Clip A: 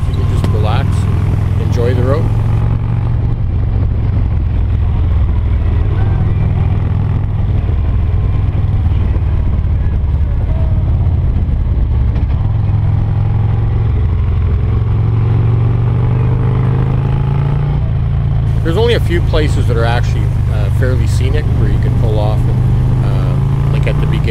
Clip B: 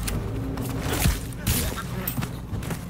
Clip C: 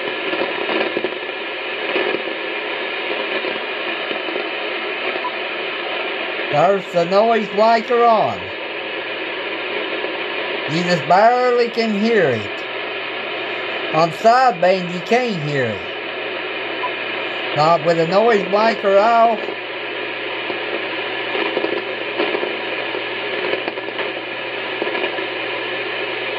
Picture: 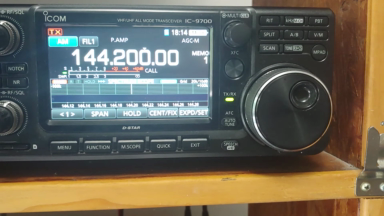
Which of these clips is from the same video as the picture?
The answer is C